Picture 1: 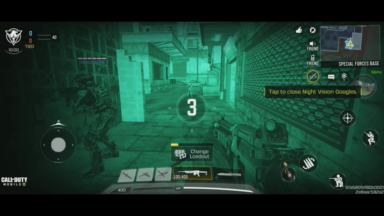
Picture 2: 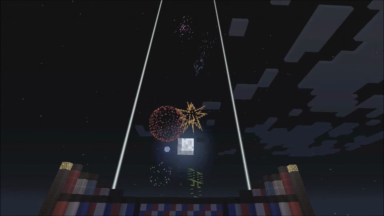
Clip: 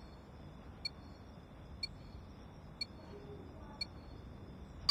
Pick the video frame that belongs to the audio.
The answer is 1